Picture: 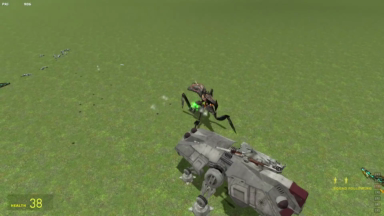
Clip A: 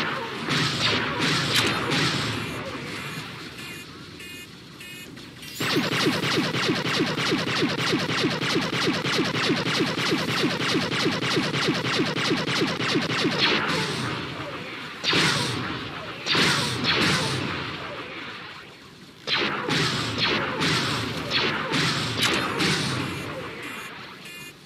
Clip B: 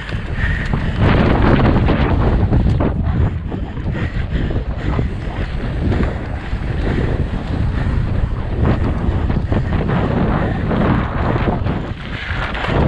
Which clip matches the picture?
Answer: A